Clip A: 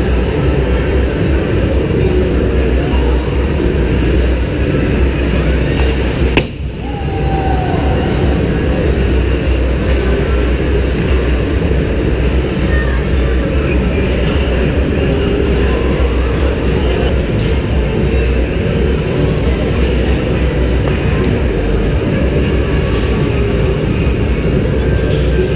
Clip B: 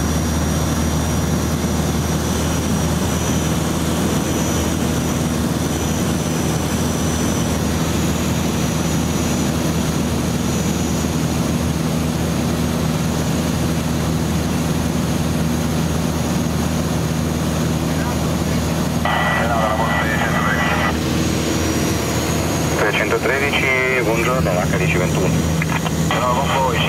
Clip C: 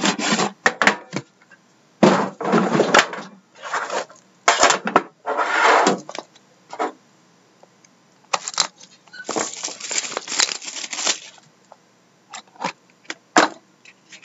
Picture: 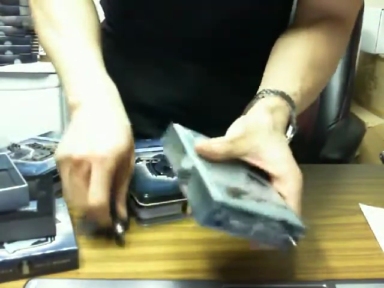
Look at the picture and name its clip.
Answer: C